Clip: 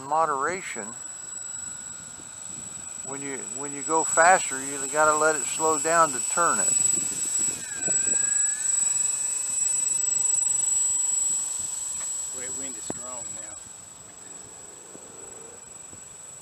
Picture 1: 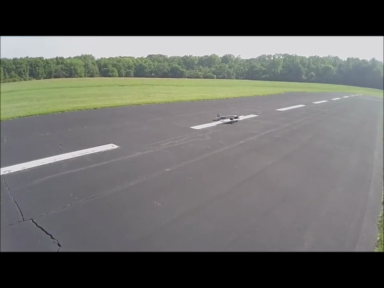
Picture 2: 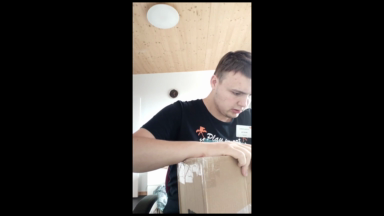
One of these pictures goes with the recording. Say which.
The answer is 1